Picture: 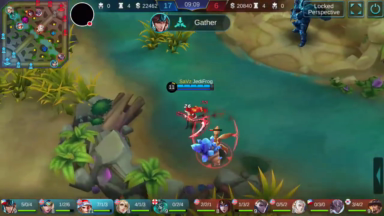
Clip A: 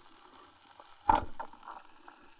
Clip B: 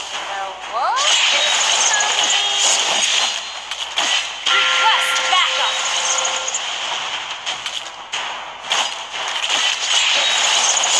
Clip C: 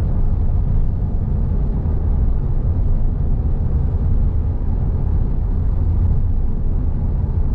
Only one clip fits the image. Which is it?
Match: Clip B